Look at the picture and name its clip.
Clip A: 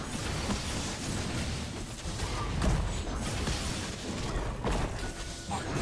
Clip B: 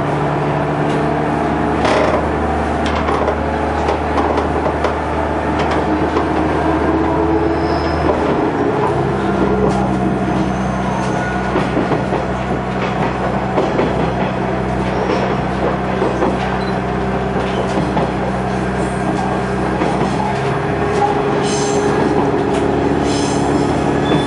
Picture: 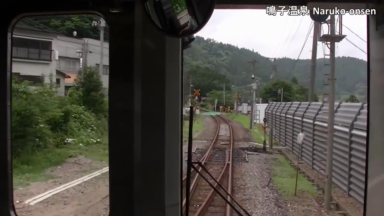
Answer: B